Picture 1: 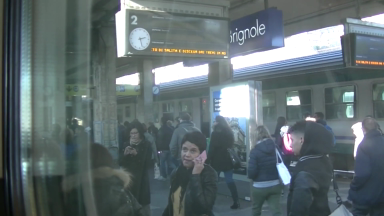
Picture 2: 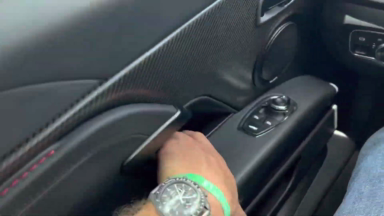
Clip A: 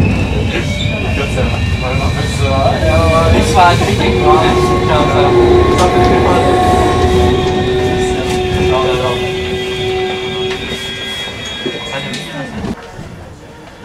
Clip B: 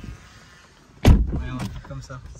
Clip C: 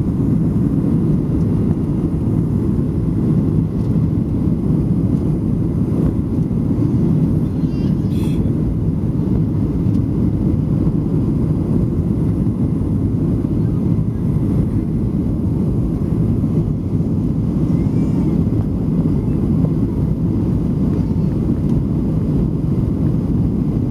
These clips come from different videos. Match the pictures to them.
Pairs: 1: A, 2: B